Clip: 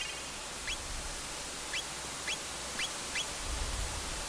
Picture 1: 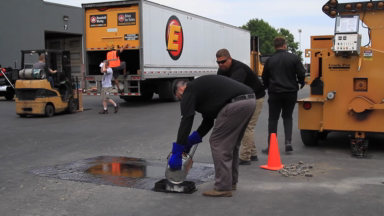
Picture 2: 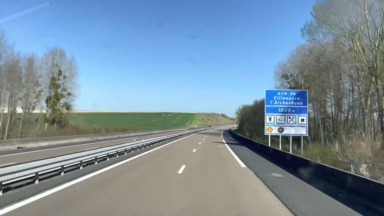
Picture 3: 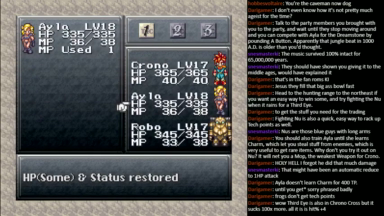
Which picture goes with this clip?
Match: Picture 3